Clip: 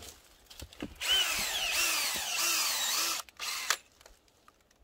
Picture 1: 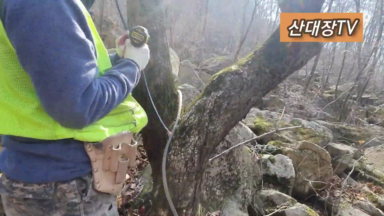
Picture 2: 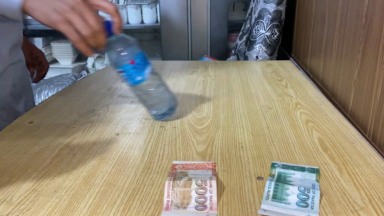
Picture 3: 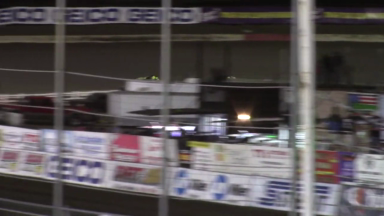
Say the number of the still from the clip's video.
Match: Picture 1